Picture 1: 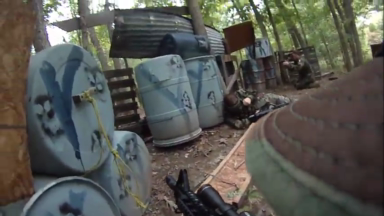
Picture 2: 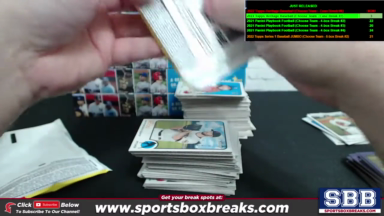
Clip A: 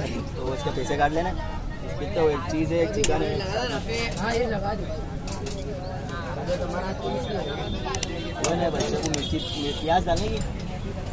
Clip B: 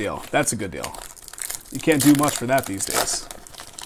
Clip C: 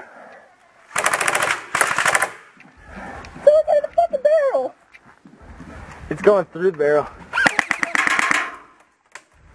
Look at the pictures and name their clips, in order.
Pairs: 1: C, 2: B